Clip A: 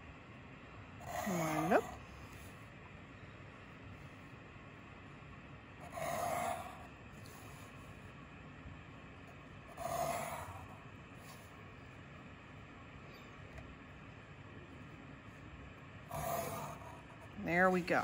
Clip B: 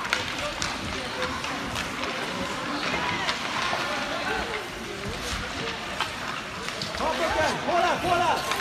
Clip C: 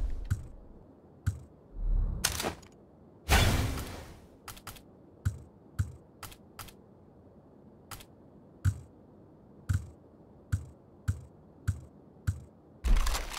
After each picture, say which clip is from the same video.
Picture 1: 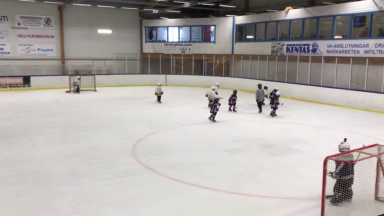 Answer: B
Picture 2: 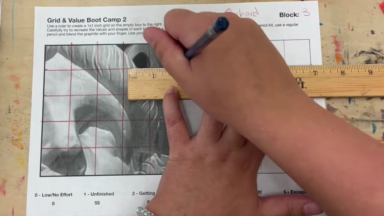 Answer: A